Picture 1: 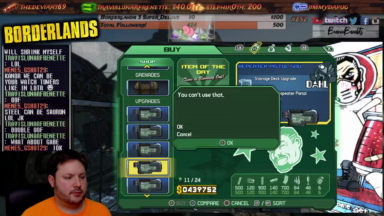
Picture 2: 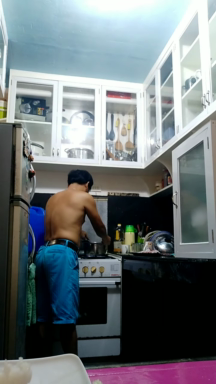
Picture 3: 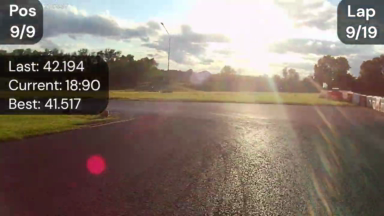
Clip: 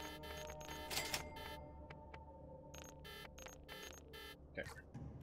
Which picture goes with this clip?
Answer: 1